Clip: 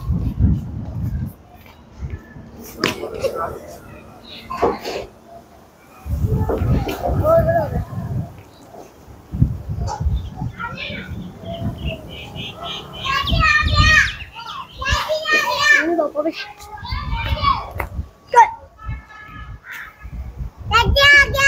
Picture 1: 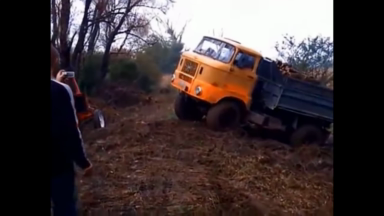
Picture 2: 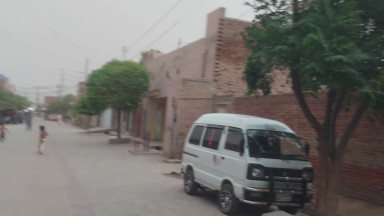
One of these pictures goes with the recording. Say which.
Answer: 2